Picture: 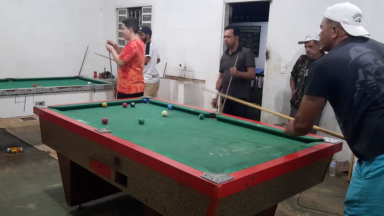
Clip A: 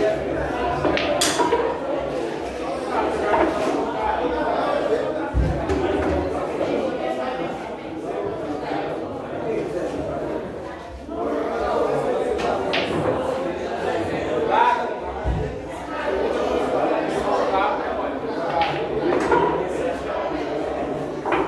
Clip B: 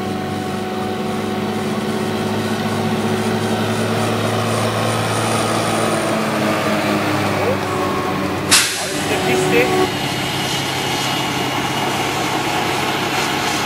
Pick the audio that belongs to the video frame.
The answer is A